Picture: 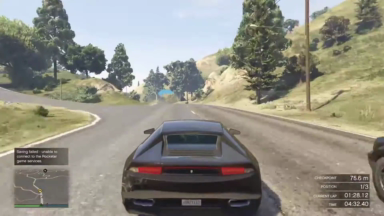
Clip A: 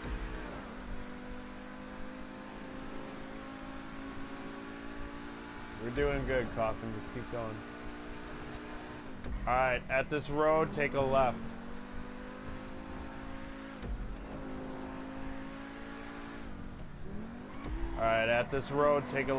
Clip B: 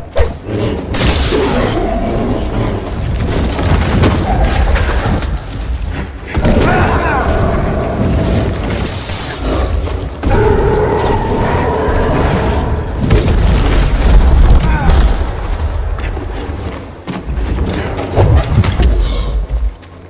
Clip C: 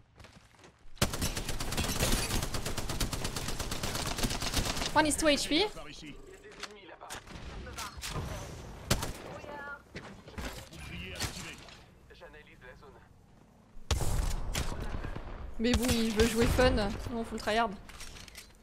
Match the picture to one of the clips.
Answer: A